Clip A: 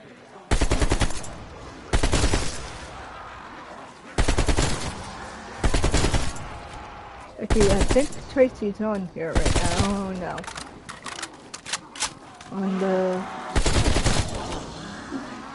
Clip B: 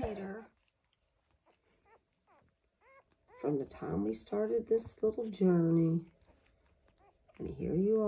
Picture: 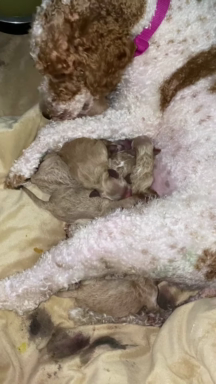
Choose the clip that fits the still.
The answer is B